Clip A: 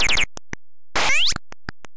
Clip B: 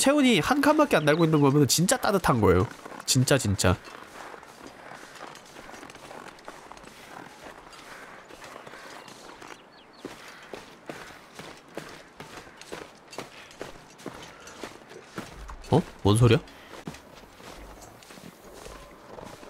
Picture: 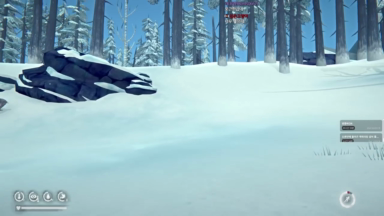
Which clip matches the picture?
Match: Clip B